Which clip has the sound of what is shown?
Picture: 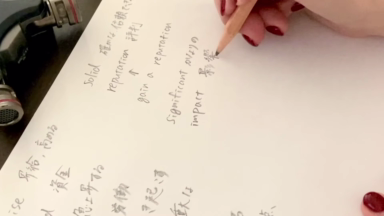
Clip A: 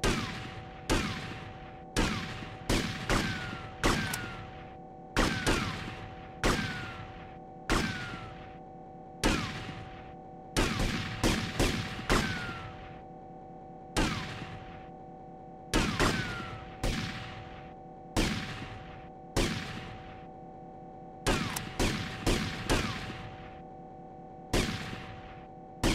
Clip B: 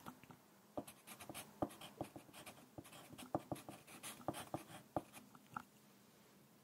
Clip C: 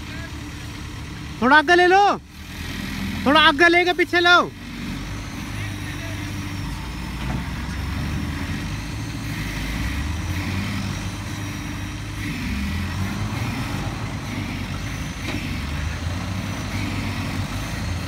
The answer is B